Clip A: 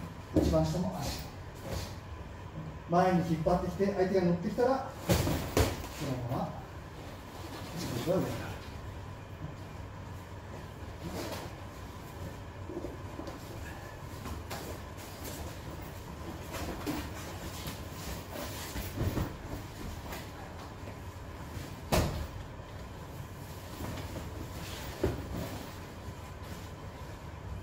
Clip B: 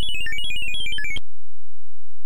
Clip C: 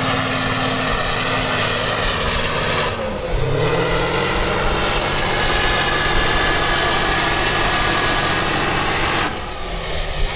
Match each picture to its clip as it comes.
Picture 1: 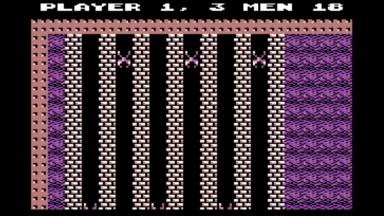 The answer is B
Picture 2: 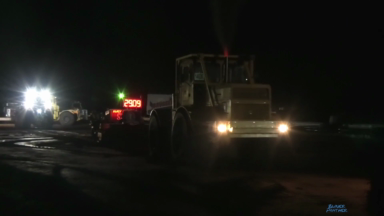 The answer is C